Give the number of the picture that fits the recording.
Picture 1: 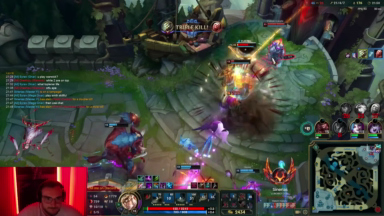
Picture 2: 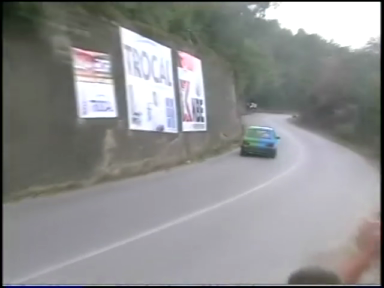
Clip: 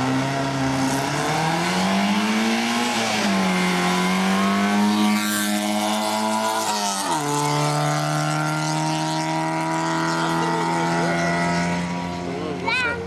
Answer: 2